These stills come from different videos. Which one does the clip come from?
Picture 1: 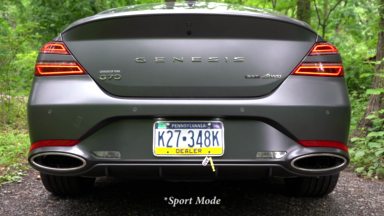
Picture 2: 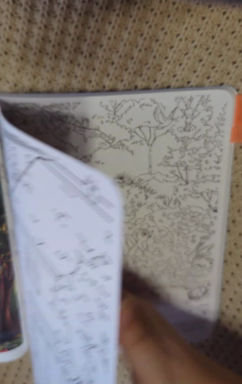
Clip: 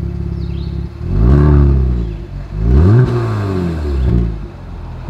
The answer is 1